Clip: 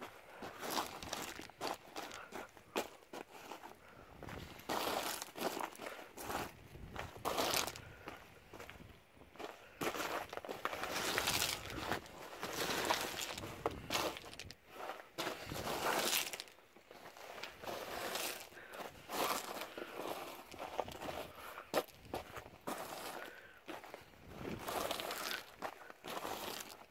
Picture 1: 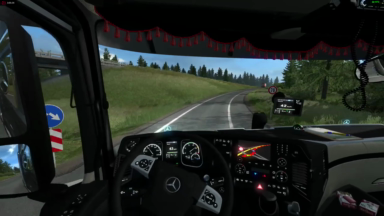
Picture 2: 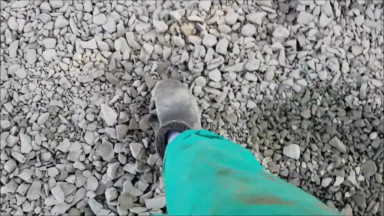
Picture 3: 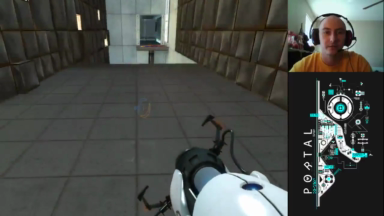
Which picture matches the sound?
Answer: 2